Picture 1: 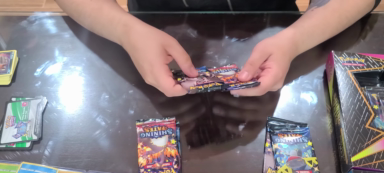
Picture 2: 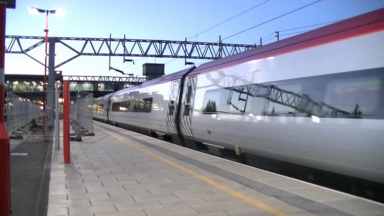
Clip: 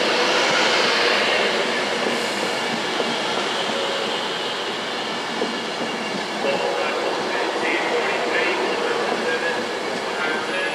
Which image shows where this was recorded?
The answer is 2